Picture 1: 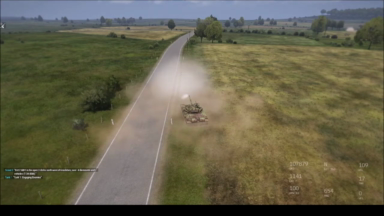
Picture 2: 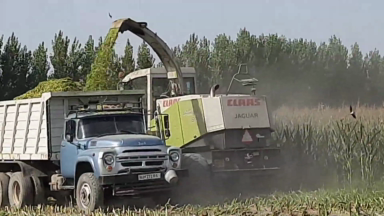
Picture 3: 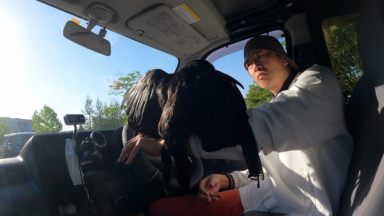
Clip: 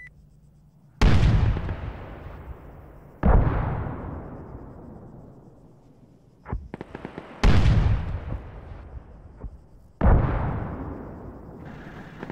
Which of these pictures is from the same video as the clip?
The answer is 1